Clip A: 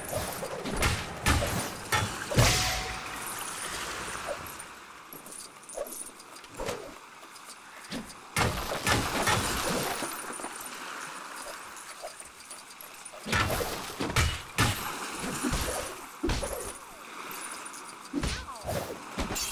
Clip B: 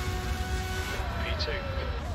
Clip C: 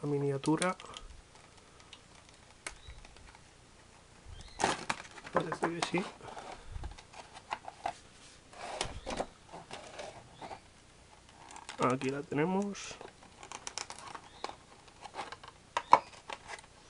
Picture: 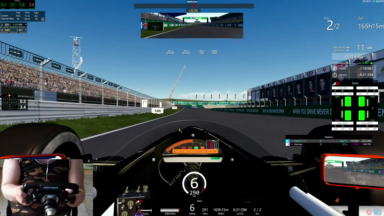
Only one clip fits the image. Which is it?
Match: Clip B